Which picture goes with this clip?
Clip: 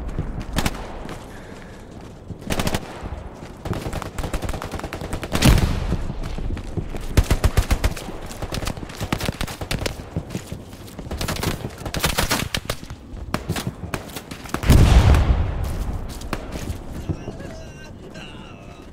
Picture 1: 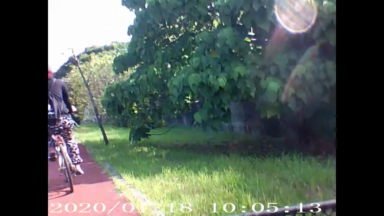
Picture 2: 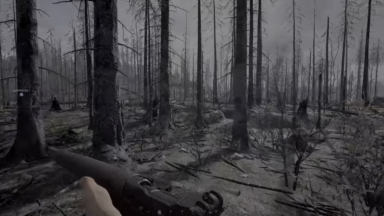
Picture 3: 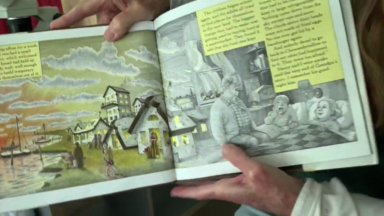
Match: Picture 2